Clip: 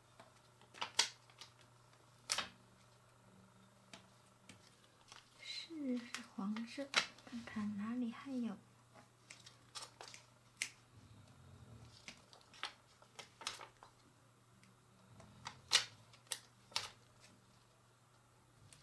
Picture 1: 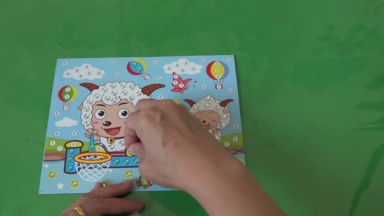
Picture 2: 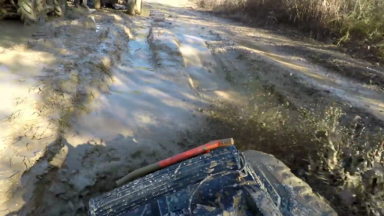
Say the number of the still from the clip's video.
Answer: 1